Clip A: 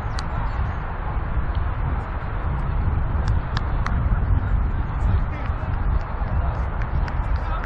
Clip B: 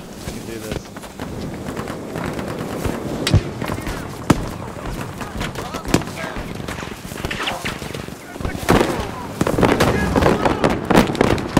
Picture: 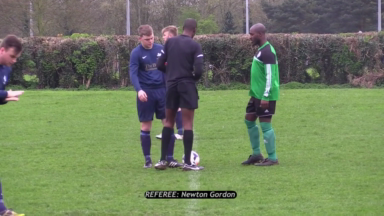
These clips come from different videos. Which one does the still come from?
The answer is A